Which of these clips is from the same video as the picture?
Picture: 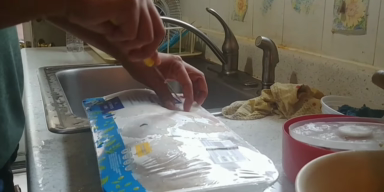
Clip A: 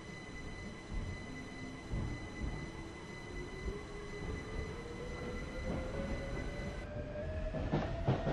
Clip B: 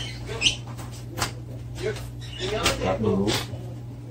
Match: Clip B